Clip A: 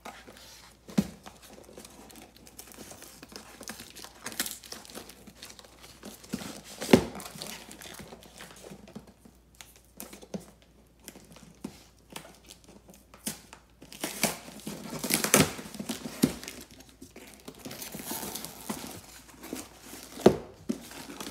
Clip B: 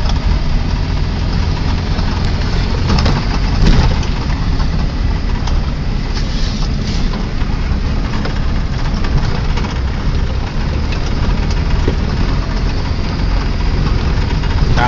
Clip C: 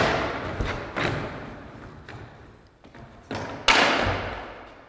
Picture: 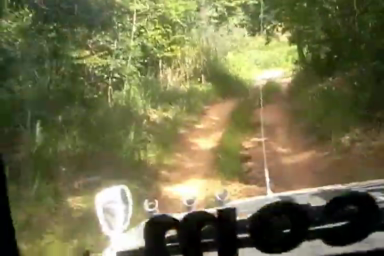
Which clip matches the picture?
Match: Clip B